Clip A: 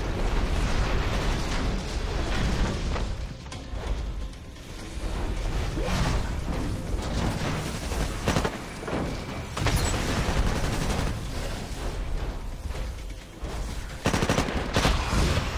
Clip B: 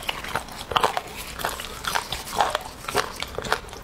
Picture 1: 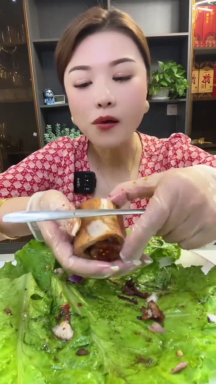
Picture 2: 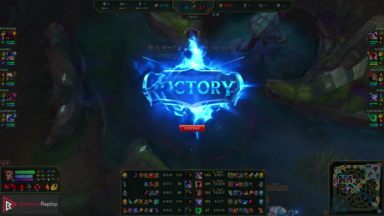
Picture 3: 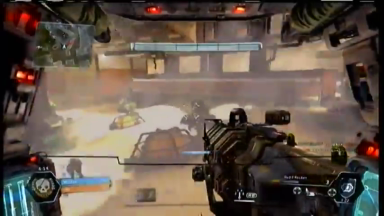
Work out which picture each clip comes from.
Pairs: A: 3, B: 1